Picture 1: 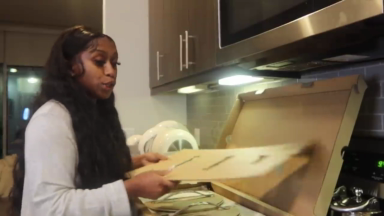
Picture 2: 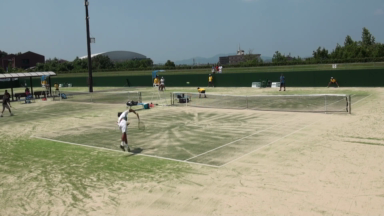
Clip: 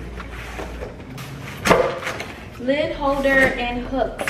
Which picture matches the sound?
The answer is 1